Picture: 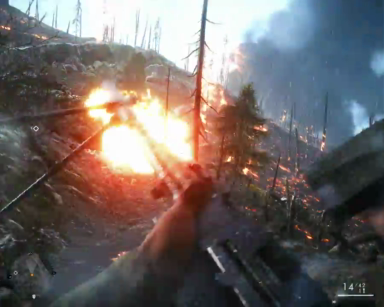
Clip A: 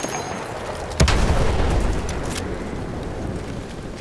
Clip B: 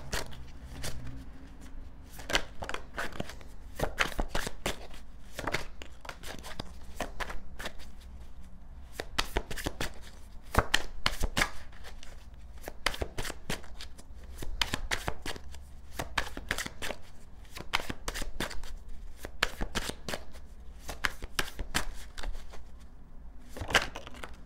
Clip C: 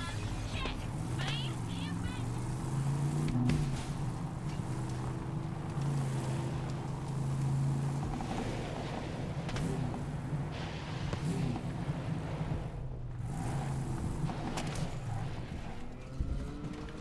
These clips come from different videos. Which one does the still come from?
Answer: A